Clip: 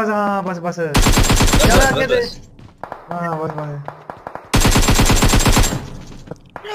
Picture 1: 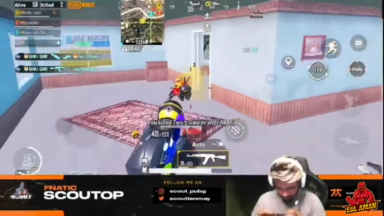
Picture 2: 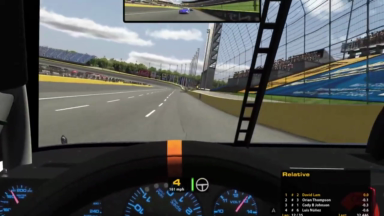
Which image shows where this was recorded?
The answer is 1